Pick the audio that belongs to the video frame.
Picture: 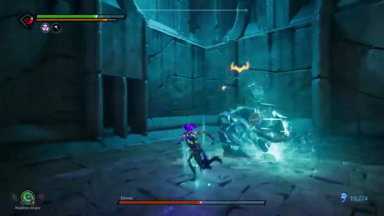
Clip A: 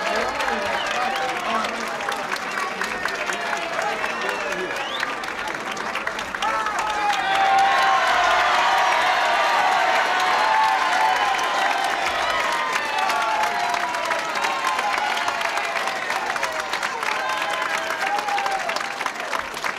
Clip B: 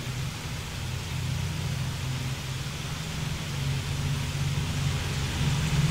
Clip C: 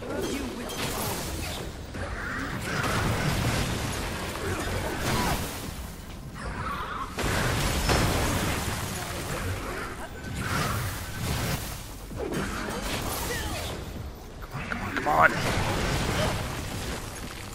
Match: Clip C